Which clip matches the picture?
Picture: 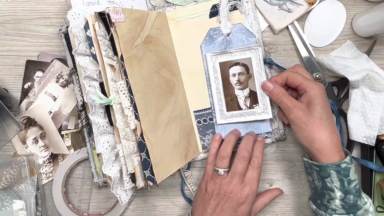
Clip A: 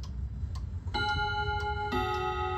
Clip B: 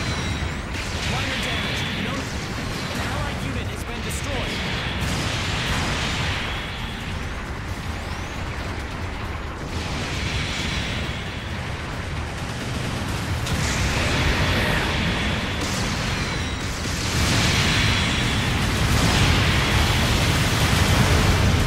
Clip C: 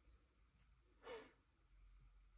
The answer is C